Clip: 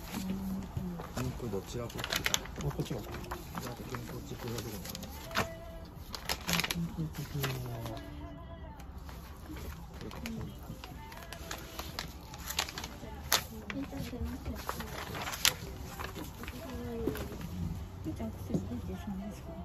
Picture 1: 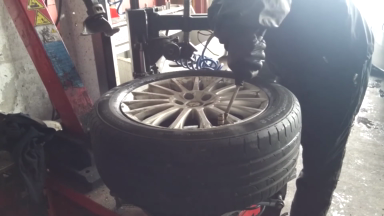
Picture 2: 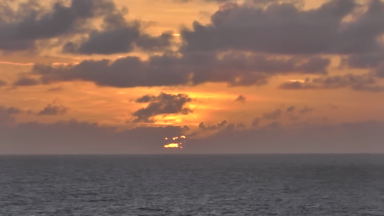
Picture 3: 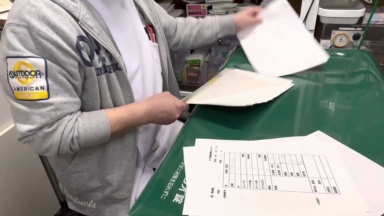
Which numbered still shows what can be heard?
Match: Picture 3